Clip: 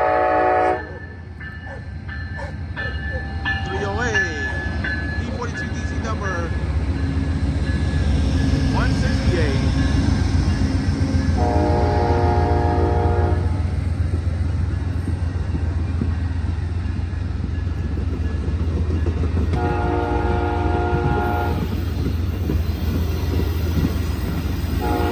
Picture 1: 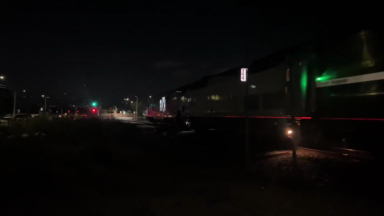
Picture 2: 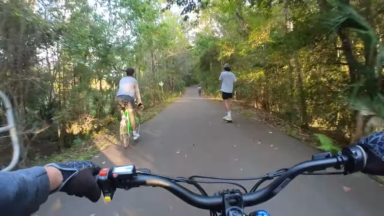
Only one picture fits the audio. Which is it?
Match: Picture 1